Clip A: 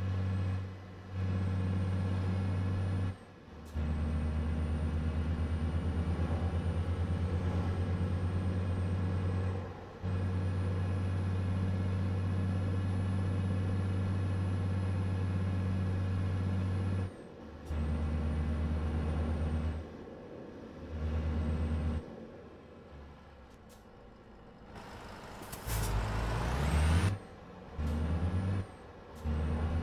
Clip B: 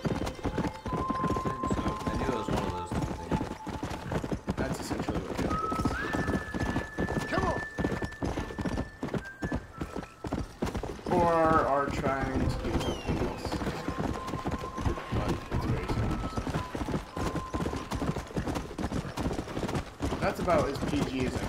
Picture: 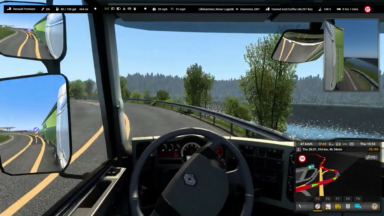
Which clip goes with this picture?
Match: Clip A